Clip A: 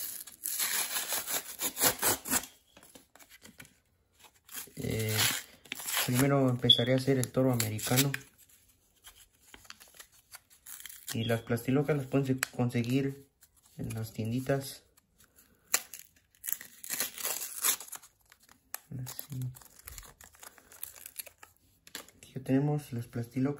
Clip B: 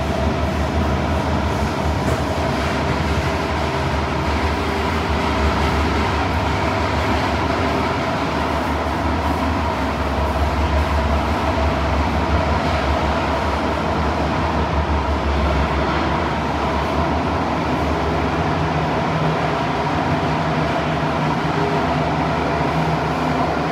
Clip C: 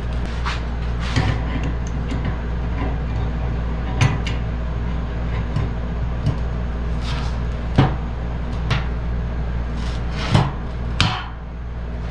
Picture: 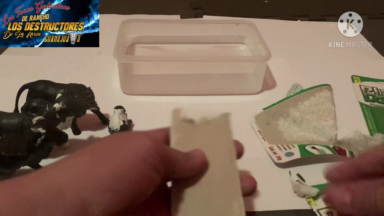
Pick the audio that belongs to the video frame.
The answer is A